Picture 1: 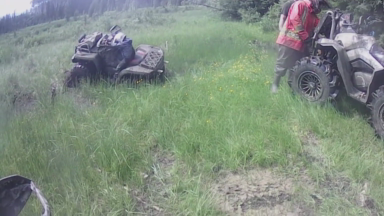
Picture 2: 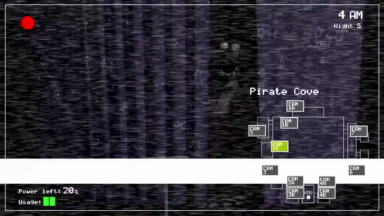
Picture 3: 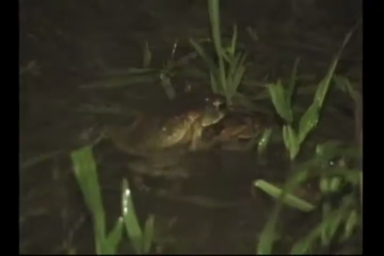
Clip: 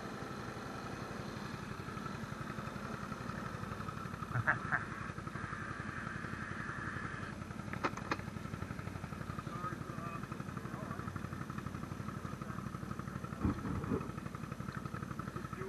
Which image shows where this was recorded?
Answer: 1